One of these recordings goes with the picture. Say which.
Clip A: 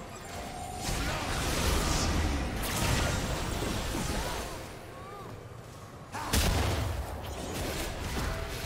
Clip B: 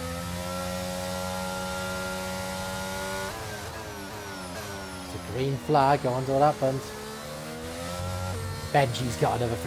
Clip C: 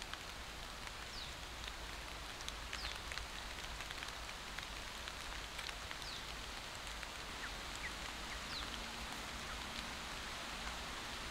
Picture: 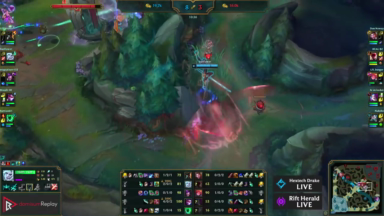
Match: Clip A